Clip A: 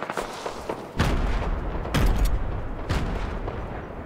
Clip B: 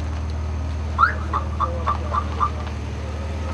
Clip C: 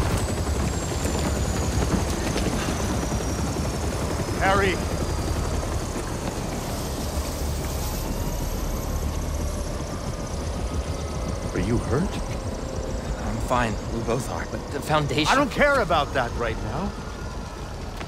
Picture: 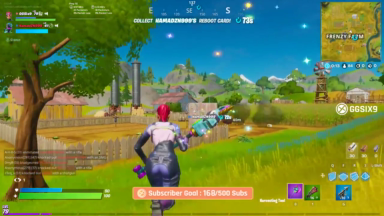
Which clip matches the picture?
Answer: A